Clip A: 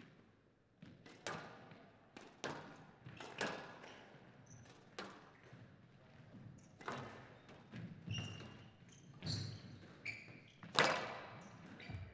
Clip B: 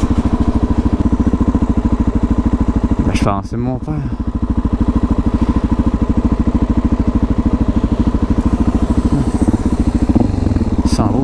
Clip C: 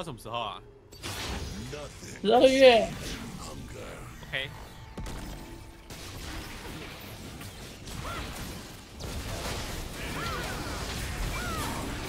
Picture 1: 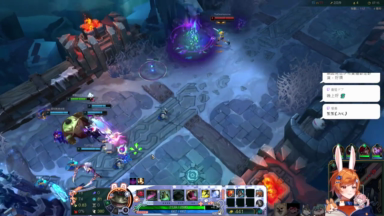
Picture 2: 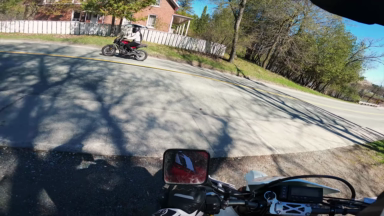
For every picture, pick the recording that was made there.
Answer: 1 C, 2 B